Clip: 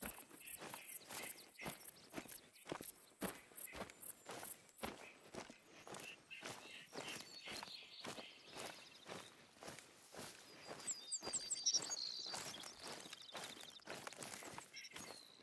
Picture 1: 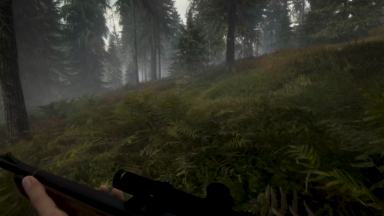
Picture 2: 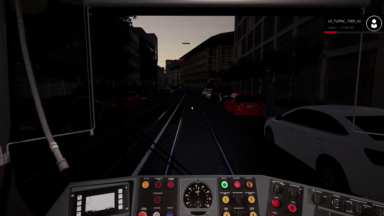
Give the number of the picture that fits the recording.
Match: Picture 1